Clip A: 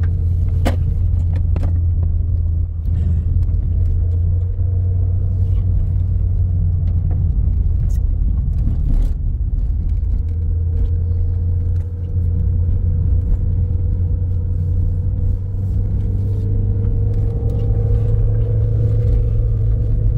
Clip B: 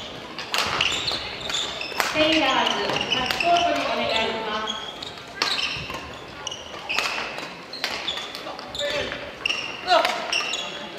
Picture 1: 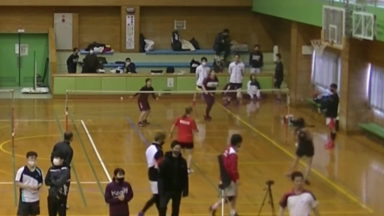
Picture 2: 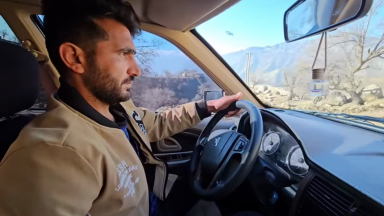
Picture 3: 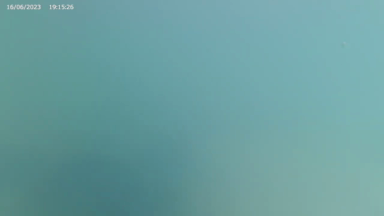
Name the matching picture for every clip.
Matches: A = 2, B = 1